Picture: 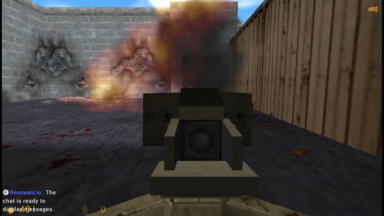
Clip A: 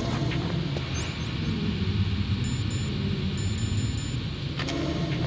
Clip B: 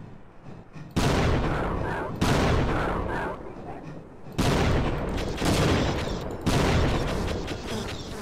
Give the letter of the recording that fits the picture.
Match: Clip B